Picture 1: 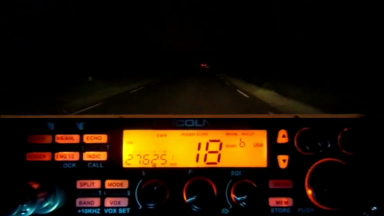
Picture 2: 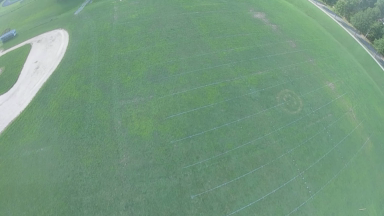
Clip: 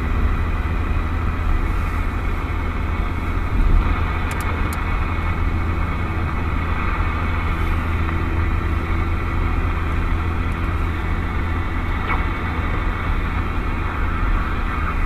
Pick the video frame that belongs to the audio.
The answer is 1